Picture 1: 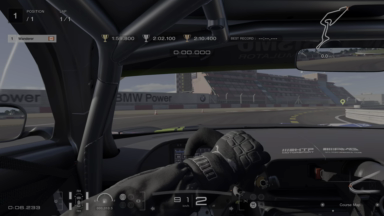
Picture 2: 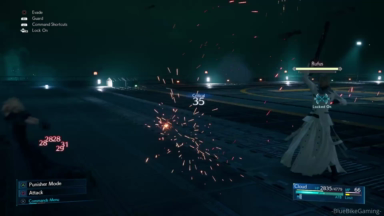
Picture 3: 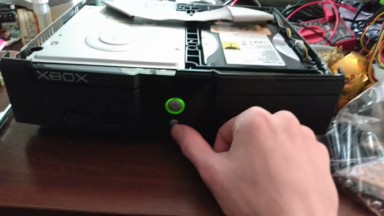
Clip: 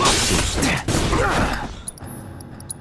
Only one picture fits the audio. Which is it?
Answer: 2